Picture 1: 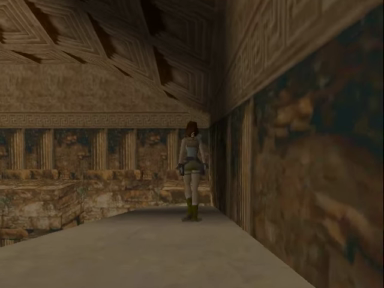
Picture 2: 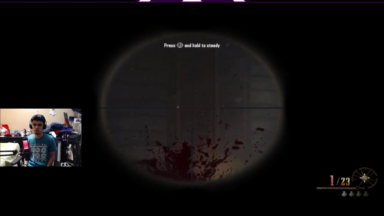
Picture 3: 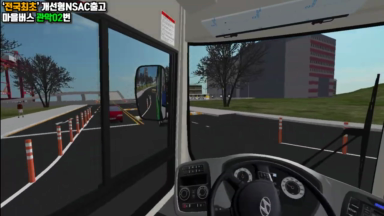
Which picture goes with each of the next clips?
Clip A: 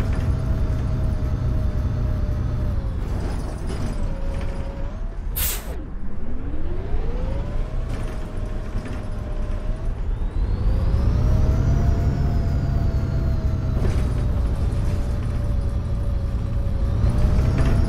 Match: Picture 3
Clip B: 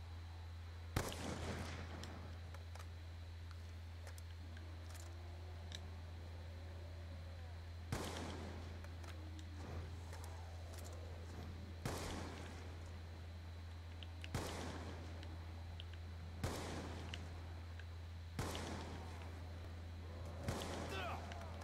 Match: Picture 2